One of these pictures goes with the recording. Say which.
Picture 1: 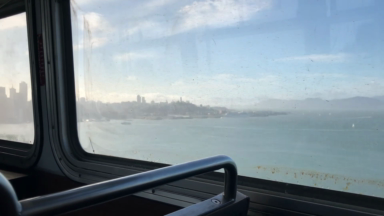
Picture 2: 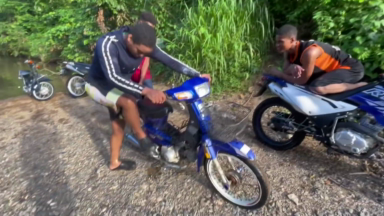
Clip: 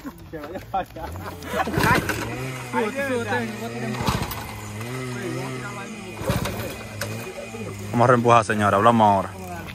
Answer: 2